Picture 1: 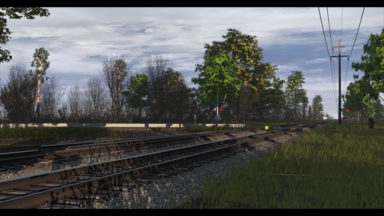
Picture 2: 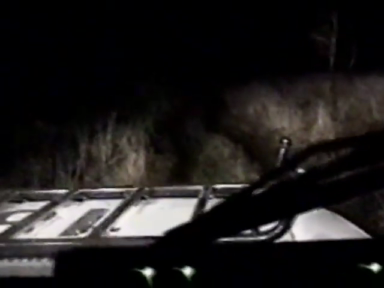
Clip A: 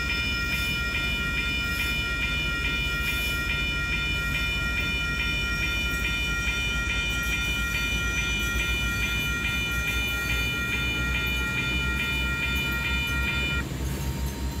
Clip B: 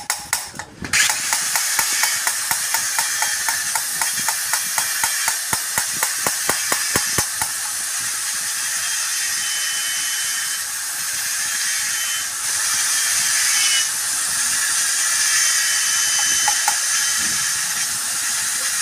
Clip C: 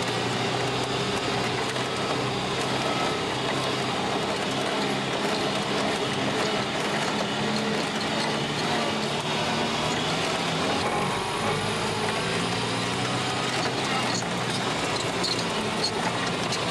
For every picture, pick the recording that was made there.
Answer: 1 A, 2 C